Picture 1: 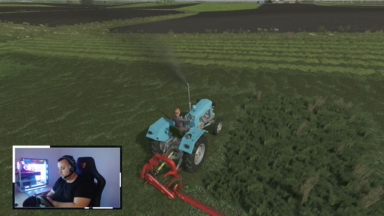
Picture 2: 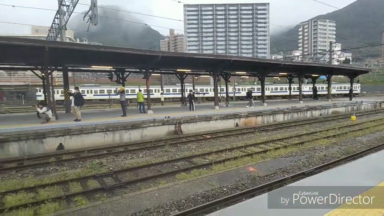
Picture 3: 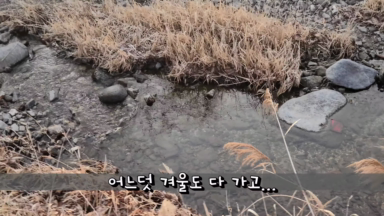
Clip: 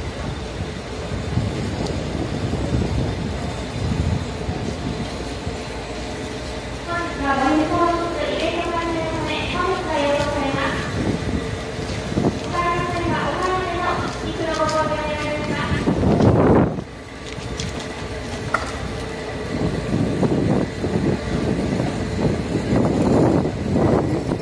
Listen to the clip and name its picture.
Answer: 2